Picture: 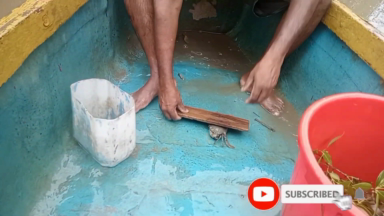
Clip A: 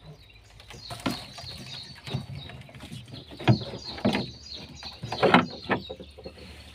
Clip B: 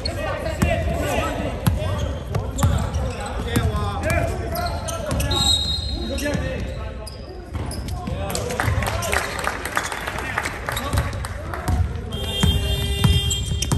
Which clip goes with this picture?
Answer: A